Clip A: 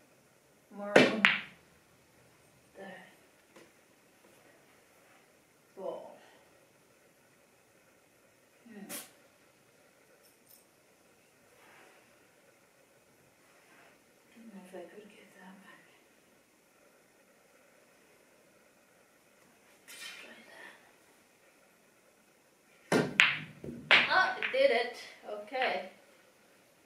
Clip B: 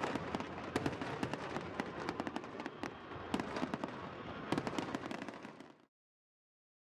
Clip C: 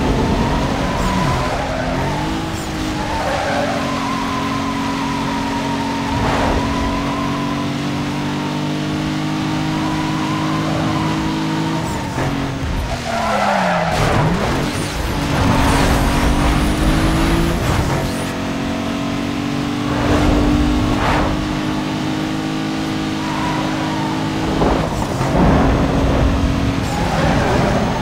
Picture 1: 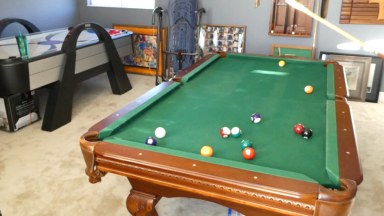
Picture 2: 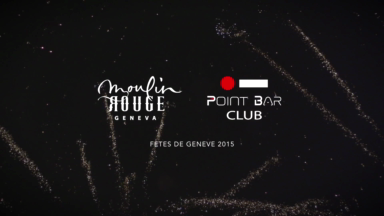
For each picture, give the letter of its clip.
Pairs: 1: A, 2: B